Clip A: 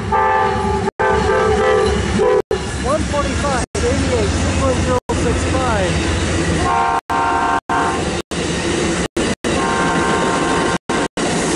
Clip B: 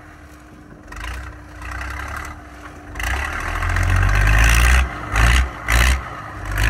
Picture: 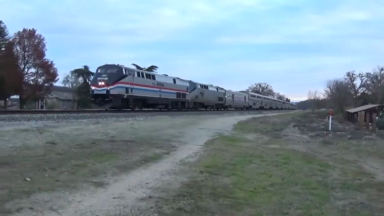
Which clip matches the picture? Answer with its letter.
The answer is A